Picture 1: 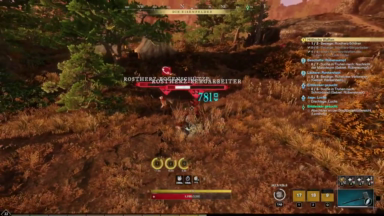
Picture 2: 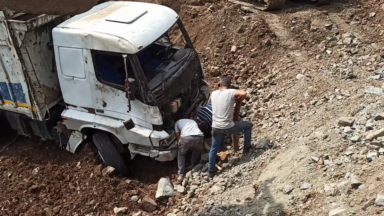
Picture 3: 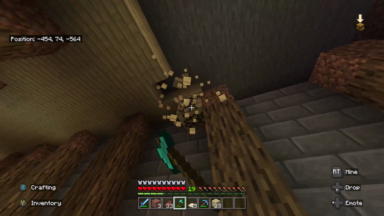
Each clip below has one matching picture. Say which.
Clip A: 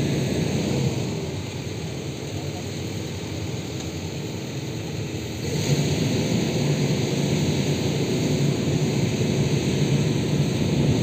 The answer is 2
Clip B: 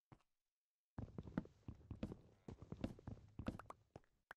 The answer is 3